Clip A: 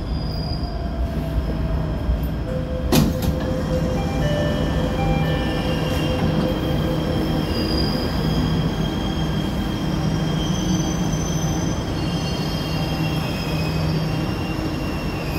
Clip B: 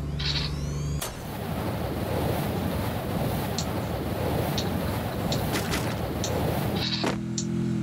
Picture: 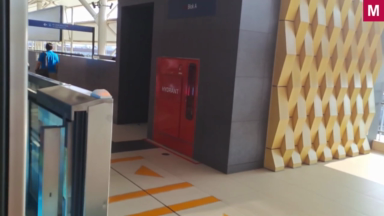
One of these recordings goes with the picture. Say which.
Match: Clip A